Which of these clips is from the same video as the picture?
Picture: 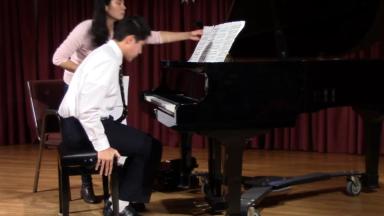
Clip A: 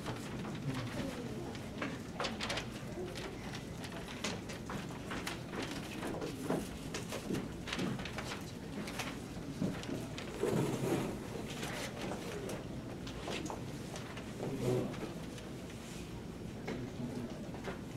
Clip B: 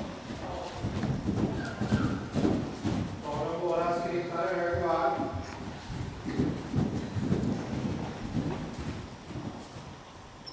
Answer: A